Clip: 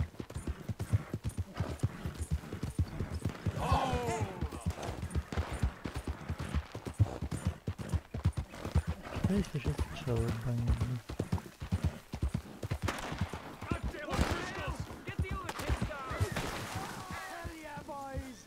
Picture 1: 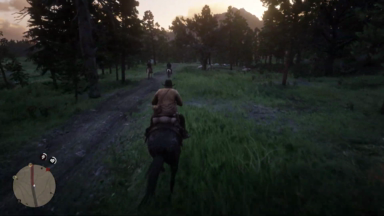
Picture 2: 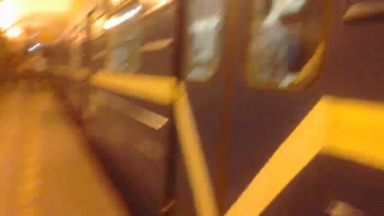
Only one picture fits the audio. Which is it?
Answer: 1